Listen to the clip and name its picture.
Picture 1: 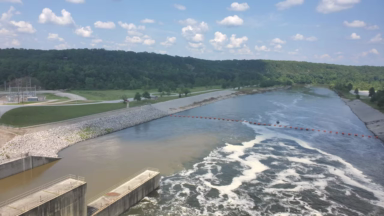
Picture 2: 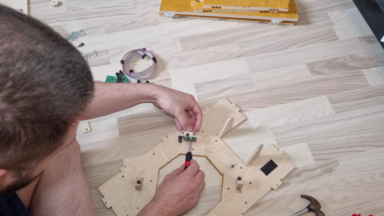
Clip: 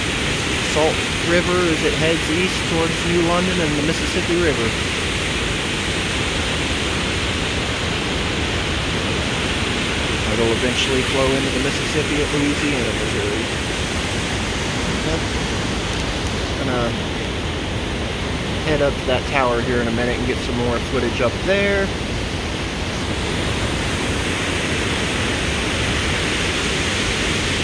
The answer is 1